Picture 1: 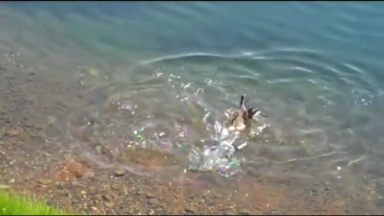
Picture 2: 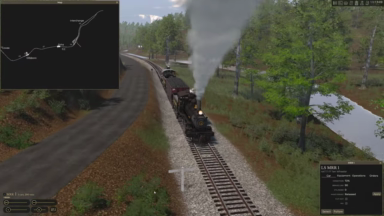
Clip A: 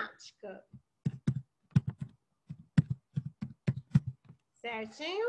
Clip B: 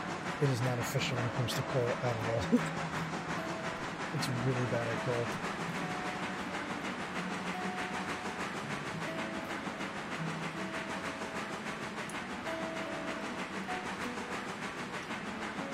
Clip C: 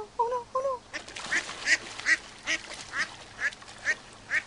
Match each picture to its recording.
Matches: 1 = C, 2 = B